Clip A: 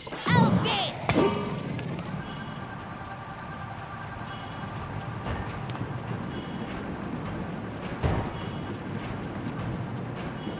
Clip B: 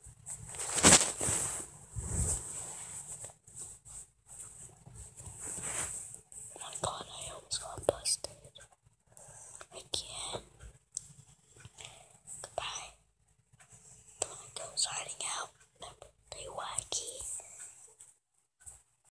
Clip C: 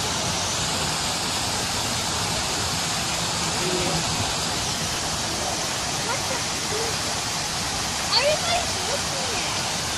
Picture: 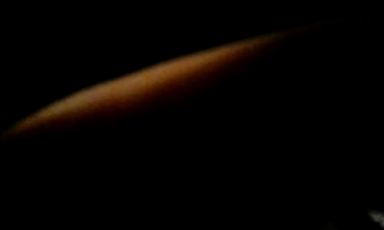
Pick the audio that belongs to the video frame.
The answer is B